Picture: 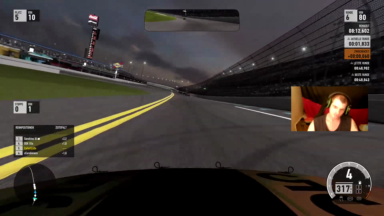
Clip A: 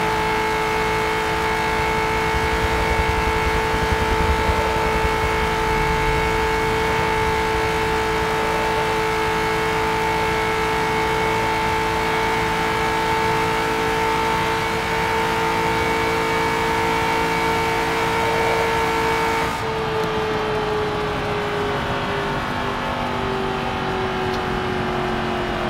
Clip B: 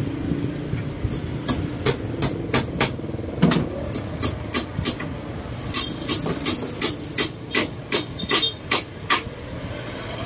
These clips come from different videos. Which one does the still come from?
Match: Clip A